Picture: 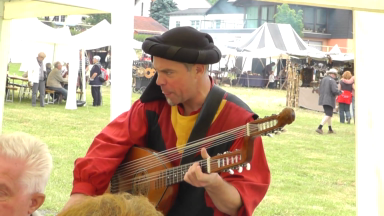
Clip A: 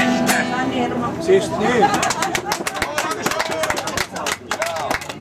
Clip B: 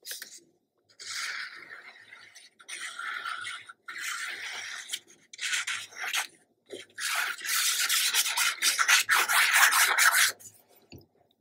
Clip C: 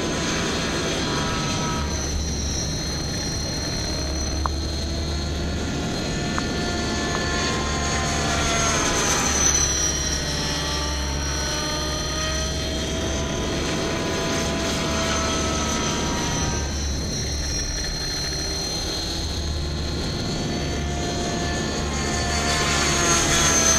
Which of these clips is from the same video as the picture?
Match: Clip A